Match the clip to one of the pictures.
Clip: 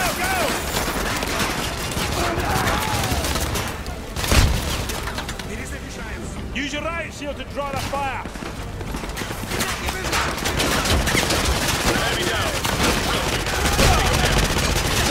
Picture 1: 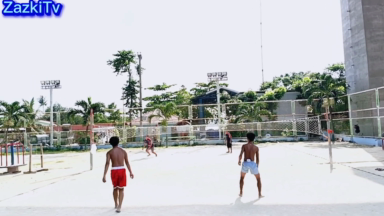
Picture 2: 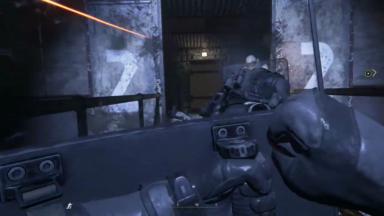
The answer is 2